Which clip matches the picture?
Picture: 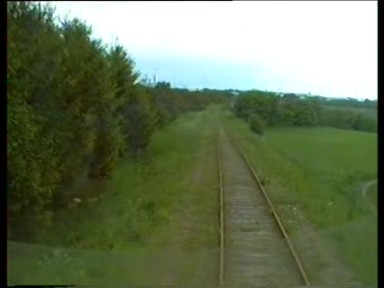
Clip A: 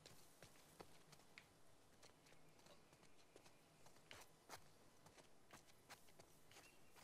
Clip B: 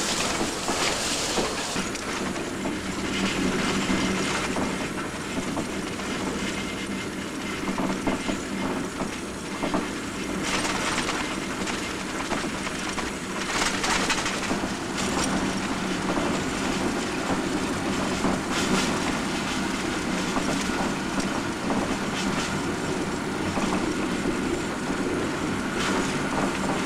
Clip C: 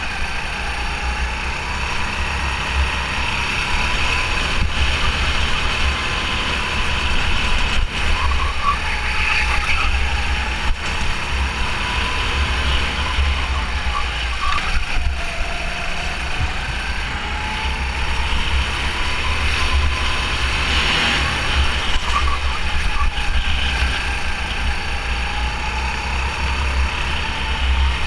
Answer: B